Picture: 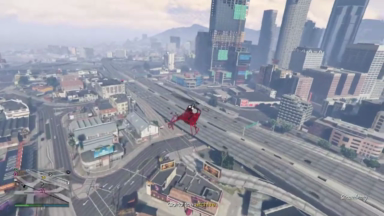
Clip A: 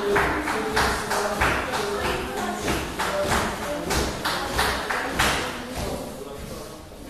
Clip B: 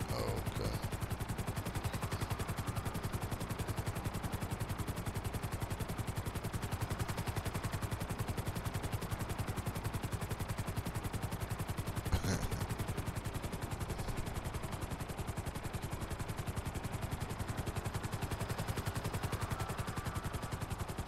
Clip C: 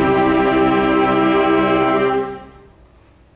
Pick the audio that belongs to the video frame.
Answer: B